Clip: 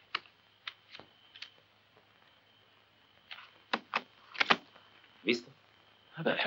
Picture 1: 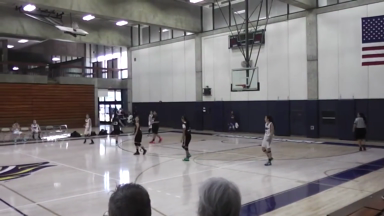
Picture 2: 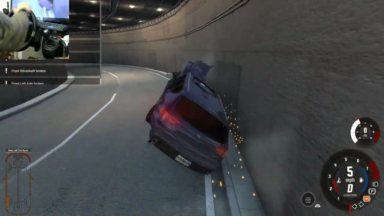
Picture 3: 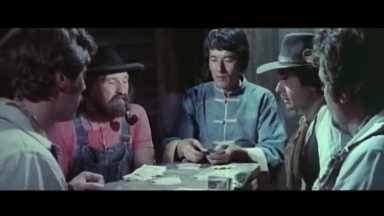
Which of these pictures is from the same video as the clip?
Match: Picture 3